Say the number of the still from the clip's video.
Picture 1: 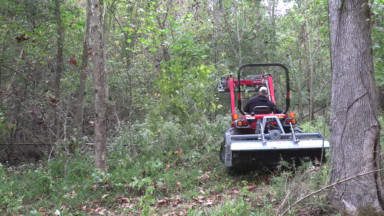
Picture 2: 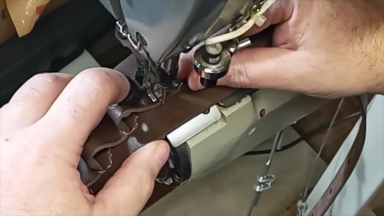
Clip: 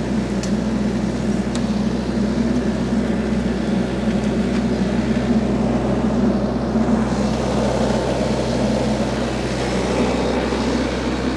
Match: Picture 1